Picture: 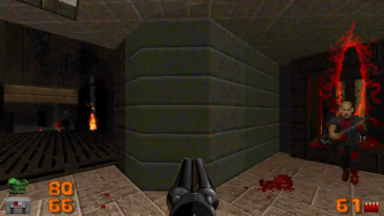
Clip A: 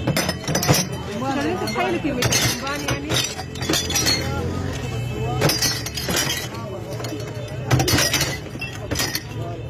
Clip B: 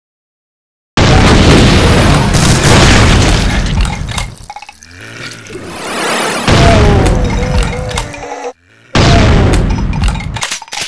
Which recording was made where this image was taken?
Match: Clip B